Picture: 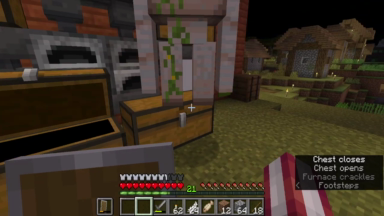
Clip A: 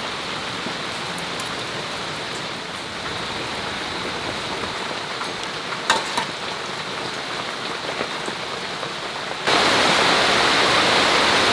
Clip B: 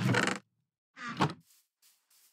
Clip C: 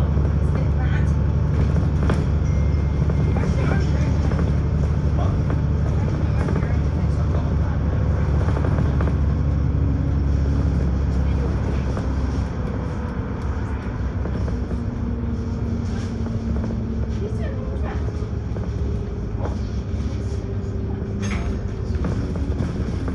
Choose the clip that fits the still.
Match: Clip B